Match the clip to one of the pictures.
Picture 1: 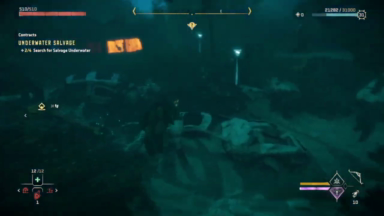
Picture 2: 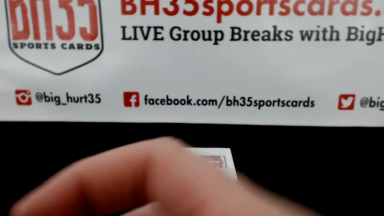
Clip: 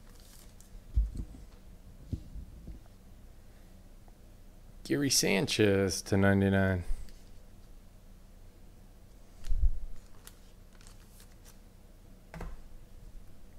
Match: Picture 2